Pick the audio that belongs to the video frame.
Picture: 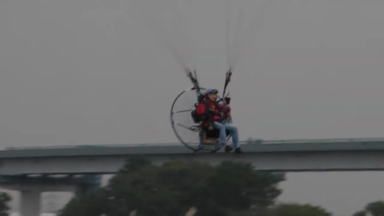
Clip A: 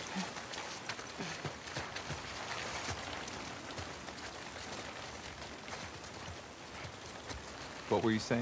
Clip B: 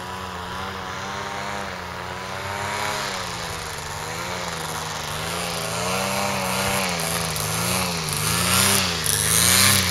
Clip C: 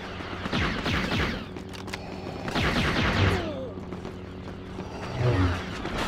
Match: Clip B